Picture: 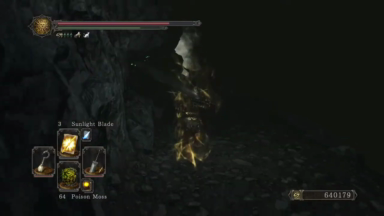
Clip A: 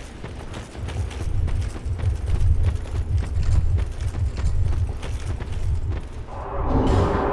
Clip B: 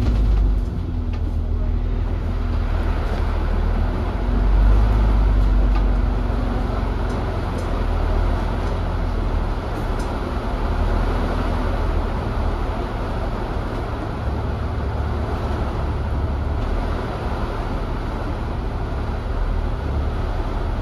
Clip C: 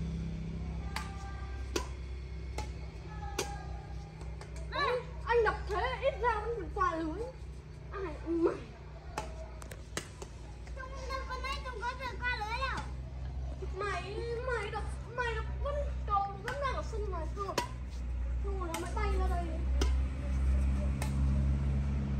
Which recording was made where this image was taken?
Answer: A